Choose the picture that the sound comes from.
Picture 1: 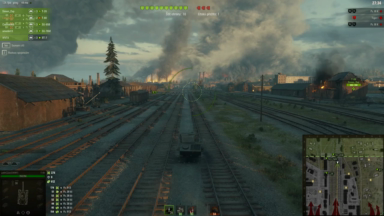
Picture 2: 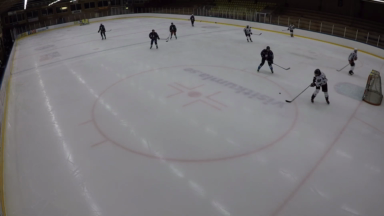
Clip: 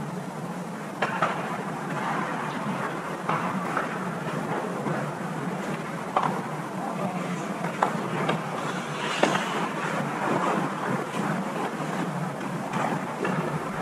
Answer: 2